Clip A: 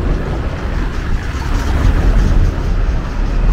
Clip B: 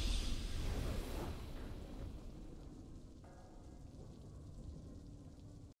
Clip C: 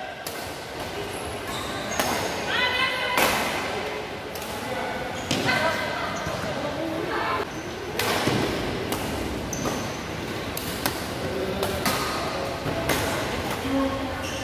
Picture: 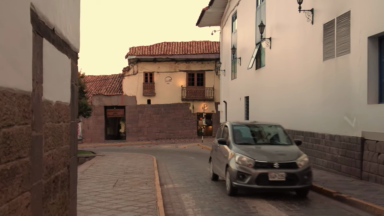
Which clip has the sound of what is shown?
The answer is A